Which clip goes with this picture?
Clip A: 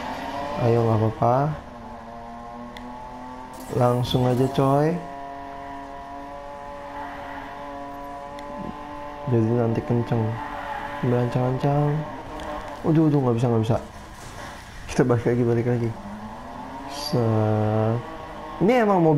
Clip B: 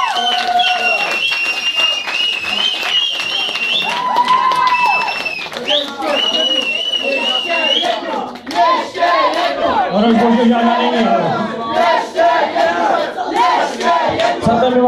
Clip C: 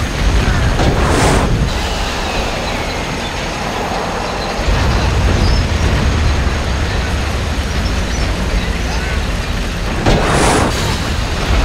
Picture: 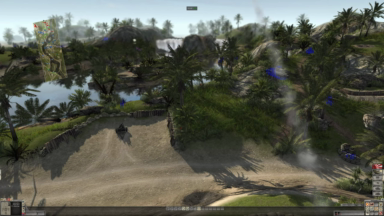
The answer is C